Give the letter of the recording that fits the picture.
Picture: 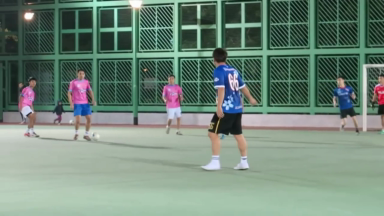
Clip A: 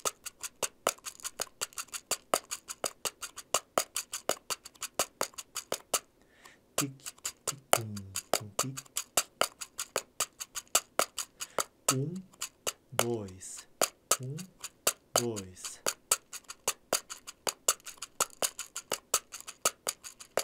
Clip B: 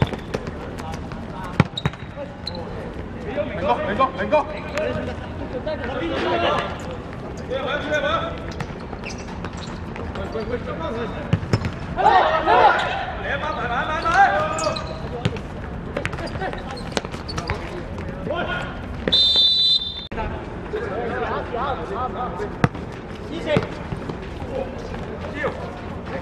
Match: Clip B